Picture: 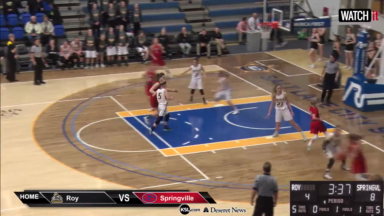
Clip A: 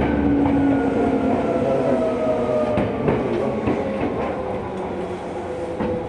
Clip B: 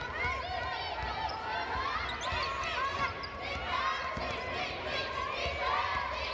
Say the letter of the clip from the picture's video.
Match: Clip B